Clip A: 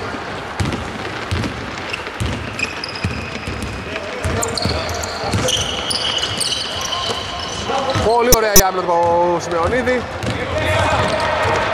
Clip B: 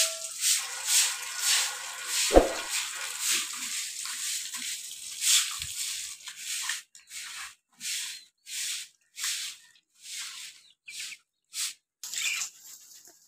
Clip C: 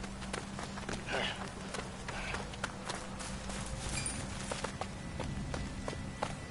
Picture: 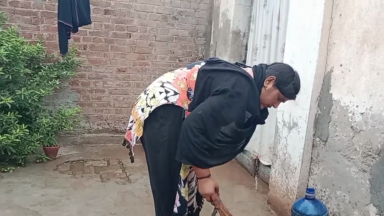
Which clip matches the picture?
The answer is B